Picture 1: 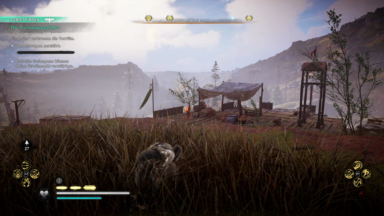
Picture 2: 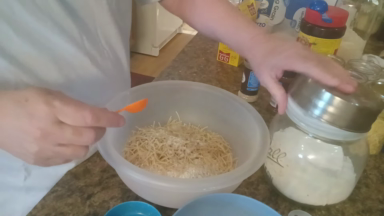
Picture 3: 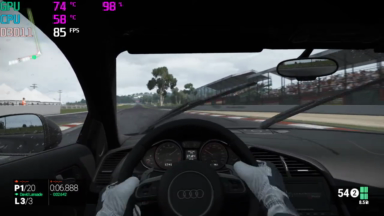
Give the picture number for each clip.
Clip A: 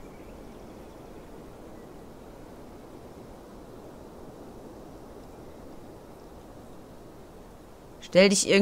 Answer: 1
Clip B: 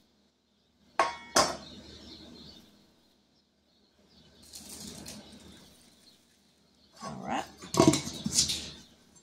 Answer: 2